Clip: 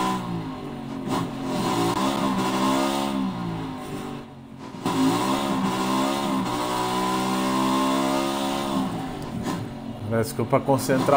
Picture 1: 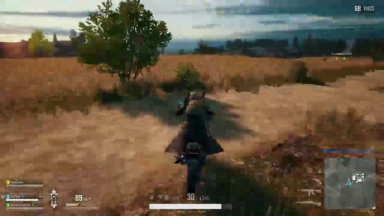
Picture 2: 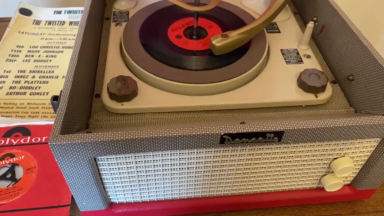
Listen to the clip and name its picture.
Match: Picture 1